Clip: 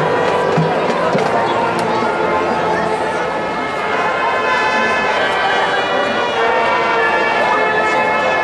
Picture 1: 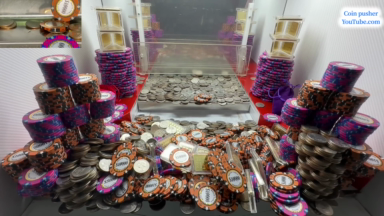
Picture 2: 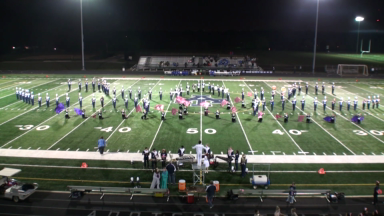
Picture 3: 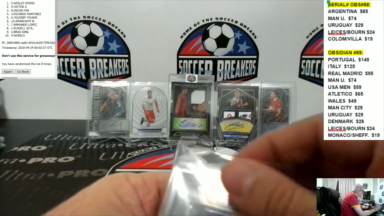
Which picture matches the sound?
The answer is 2